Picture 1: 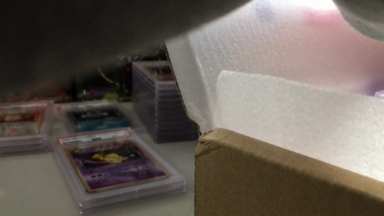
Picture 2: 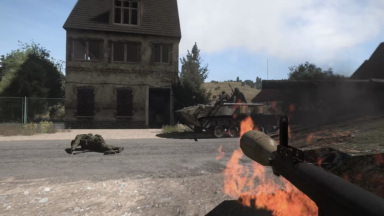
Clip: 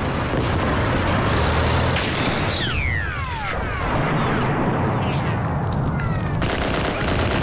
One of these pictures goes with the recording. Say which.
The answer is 2